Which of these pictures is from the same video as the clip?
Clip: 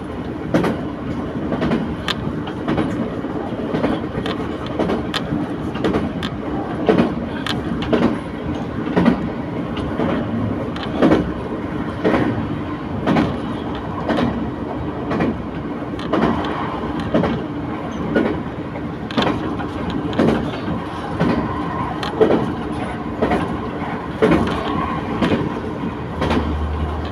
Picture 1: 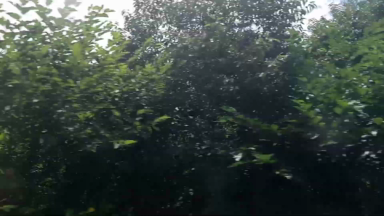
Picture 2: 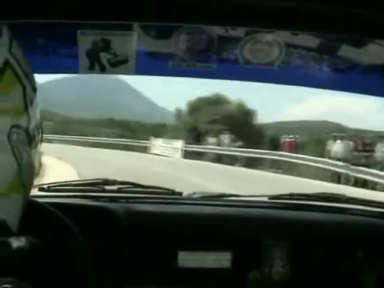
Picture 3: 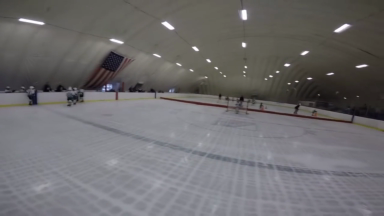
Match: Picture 1